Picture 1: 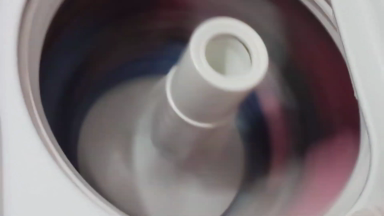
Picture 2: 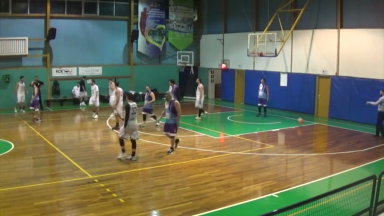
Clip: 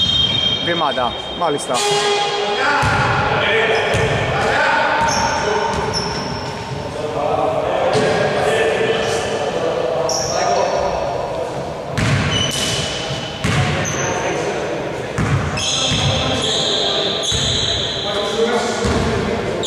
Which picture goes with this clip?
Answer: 2